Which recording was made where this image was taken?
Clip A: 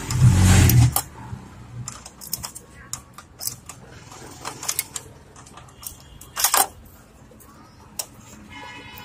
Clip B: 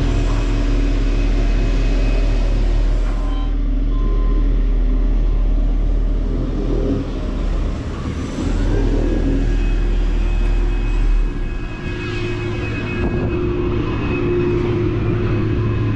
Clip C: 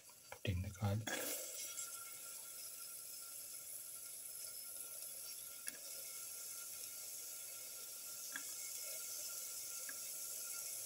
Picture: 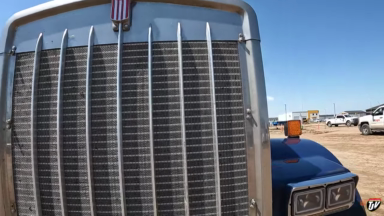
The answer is B